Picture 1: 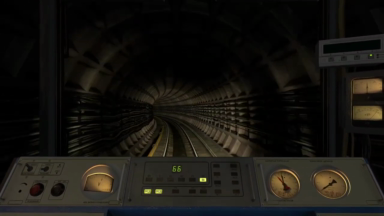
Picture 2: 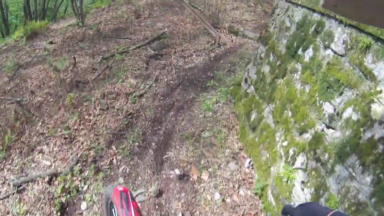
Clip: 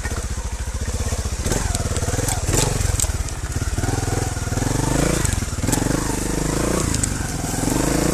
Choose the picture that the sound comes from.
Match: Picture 2